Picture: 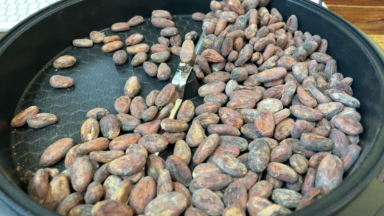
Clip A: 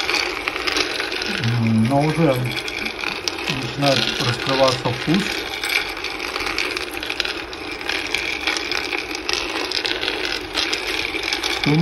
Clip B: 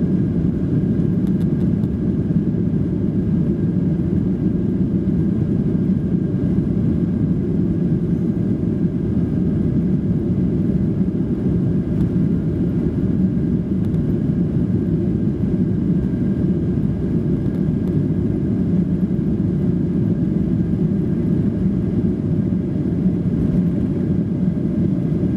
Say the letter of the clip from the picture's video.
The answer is A